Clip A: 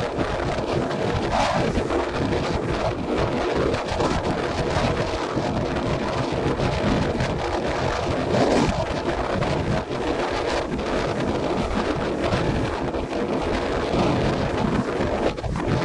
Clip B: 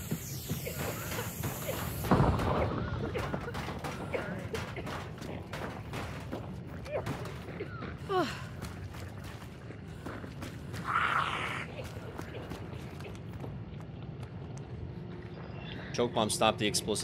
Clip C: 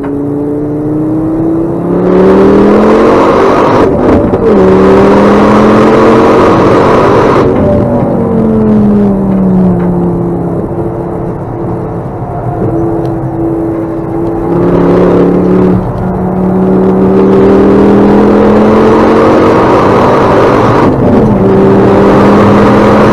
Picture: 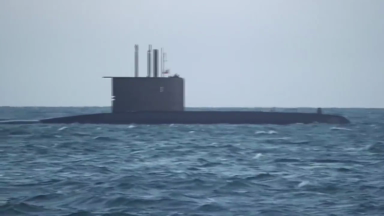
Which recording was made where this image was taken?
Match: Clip A